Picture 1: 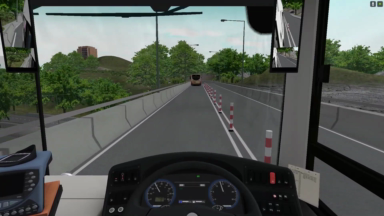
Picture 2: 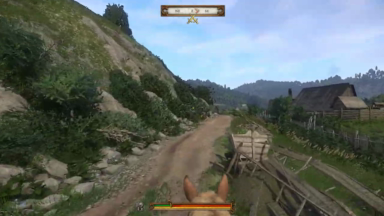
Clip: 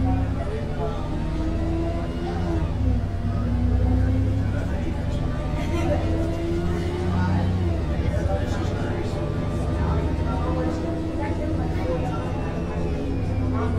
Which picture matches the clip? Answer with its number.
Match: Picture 1